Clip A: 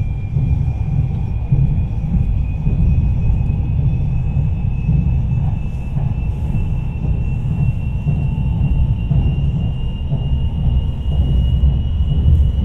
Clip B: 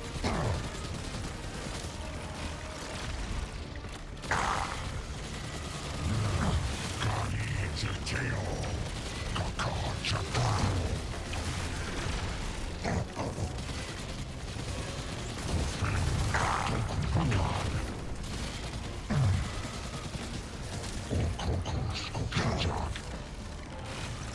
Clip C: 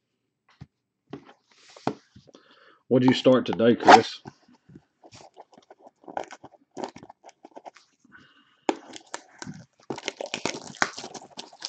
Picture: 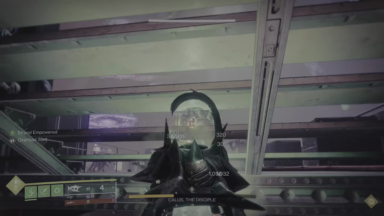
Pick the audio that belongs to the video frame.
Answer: B